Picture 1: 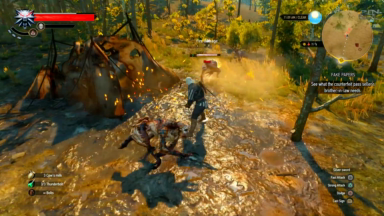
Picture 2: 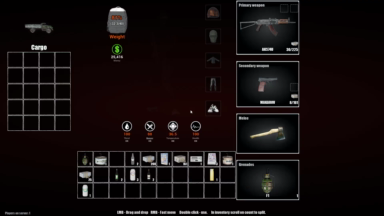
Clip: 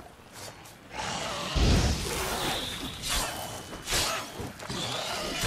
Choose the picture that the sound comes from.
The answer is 1